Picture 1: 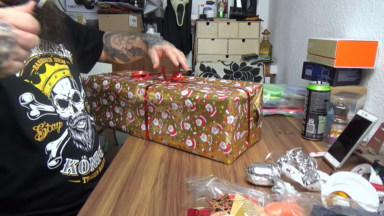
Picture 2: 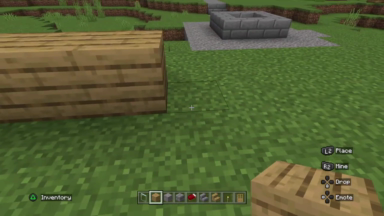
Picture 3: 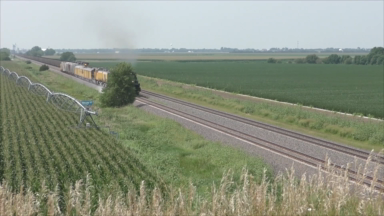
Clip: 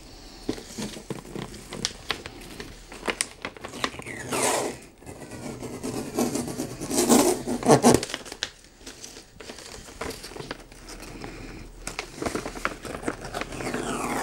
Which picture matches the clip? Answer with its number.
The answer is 1